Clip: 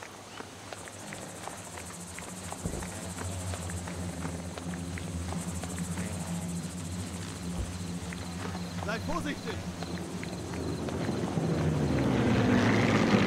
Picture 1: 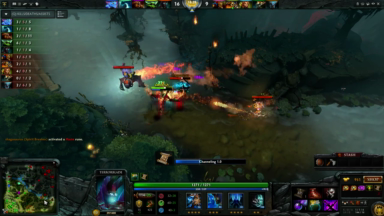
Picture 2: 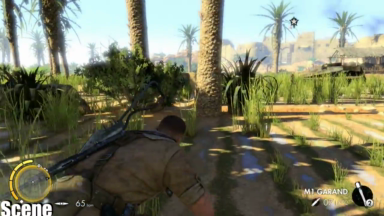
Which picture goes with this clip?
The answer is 2